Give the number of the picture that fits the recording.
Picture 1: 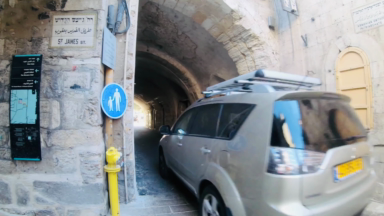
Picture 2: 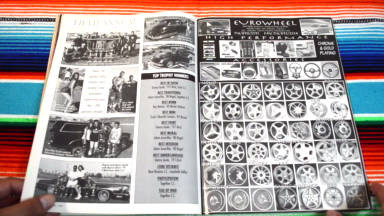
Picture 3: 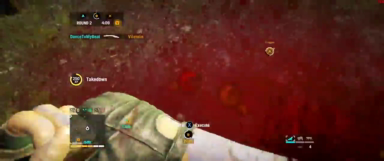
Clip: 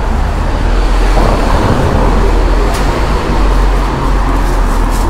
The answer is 1